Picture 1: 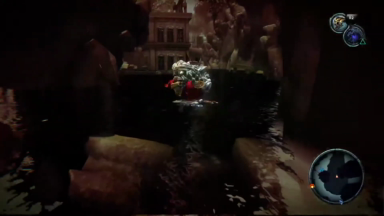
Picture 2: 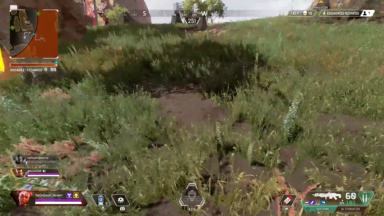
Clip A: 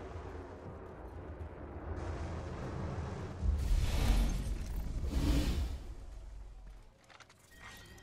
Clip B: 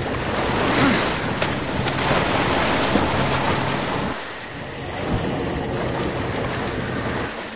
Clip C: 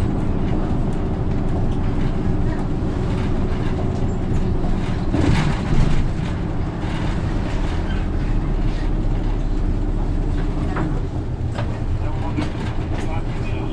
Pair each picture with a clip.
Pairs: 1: B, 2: A